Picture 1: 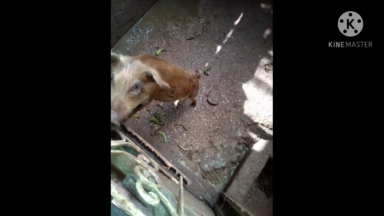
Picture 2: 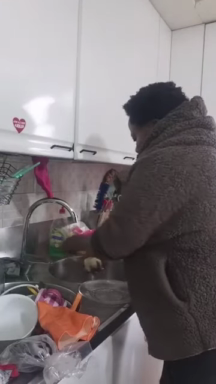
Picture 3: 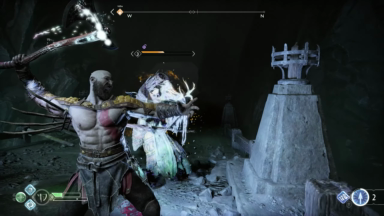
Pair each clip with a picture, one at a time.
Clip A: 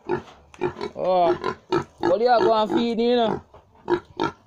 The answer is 1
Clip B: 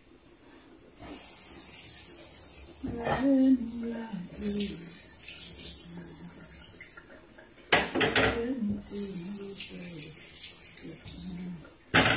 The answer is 2